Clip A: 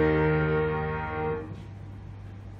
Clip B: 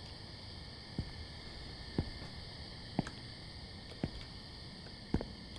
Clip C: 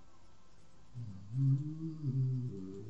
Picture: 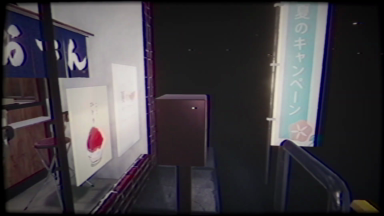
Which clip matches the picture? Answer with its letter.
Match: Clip B